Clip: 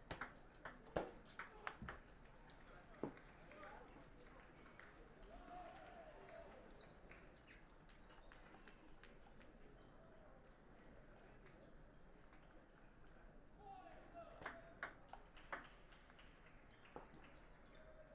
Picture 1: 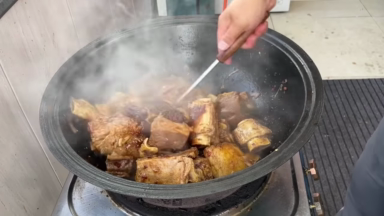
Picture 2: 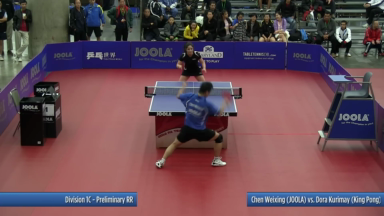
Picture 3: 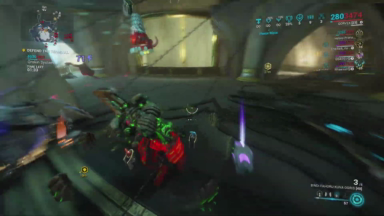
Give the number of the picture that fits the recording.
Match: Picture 2